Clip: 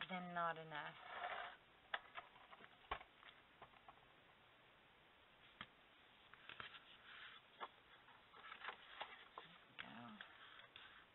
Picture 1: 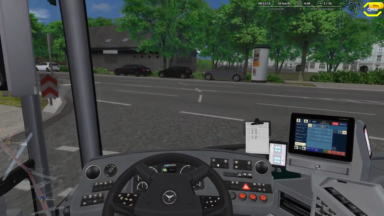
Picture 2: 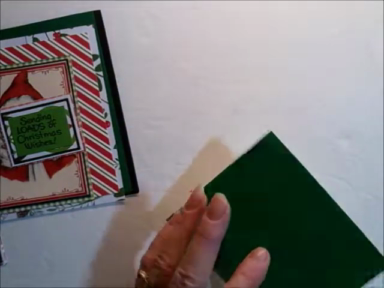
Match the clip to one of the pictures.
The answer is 2